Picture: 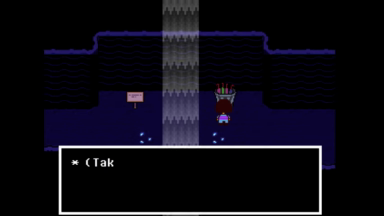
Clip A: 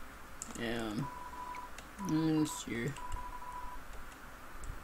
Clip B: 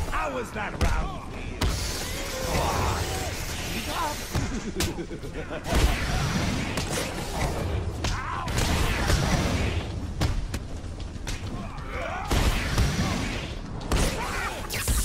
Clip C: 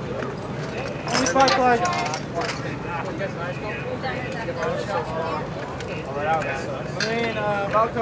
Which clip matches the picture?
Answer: A